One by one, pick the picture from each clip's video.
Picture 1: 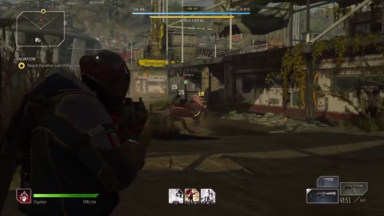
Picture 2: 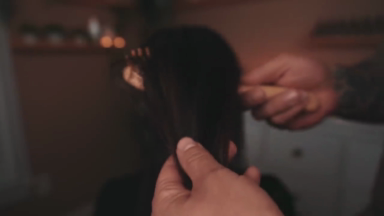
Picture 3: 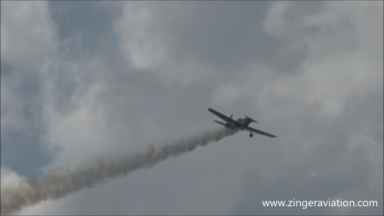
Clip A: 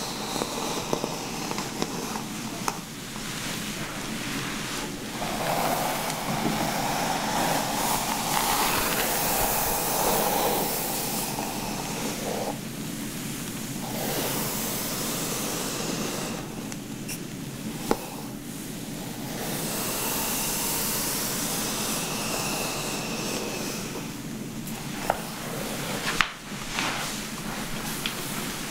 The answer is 2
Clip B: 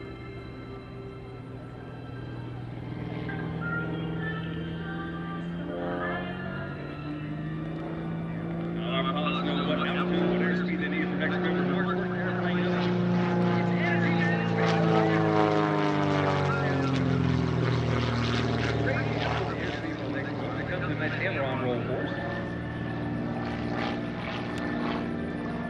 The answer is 3